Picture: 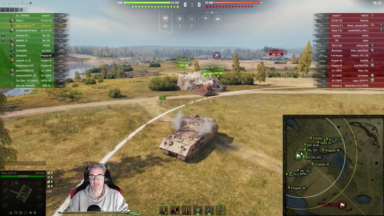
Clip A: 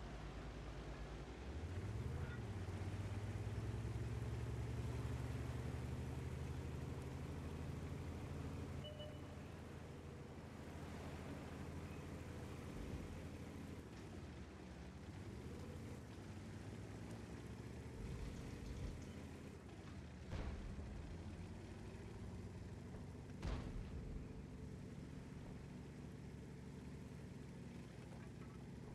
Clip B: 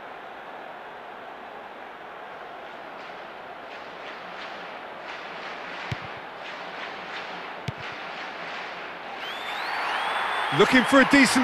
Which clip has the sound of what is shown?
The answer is A